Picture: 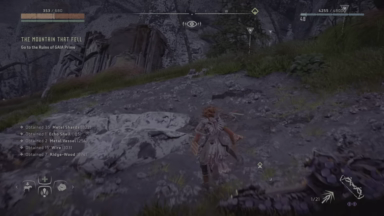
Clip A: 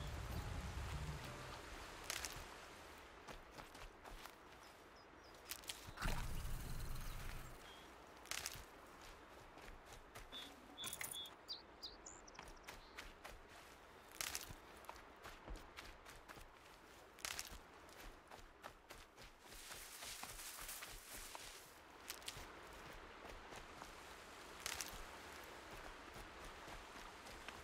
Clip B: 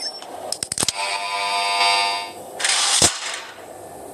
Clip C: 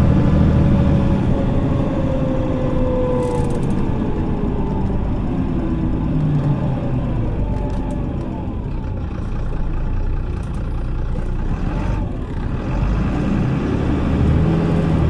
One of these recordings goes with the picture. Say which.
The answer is A